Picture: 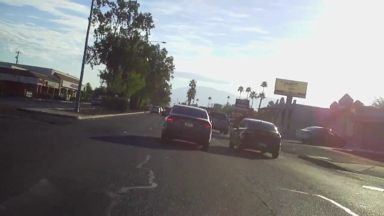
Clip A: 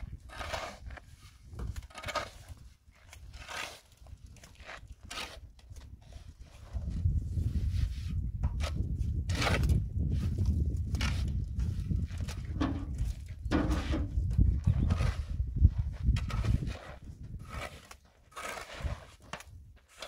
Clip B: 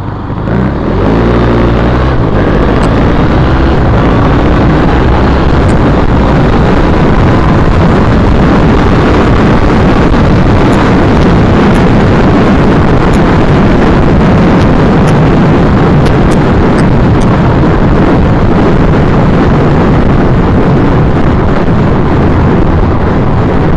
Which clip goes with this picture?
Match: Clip B